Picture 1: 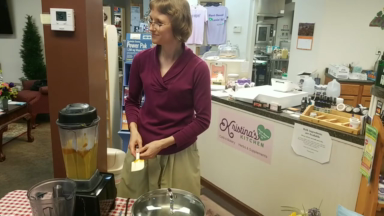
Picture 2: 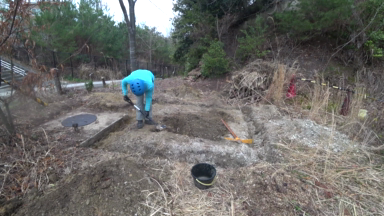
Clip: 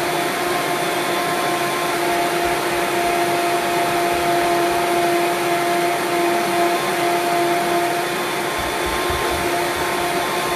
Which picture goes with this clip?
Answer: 1